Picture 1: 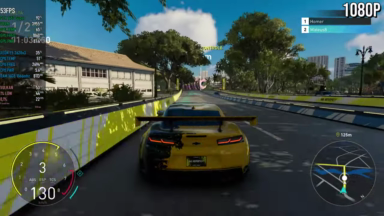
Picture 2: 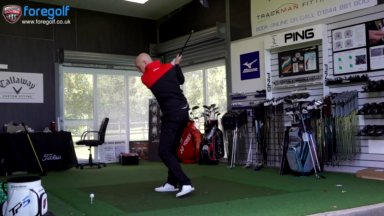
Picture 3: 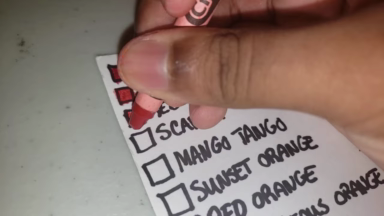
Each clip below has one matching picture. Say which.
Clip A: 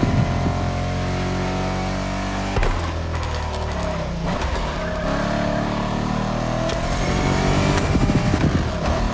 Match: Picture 1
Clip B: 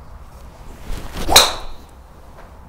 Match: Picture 2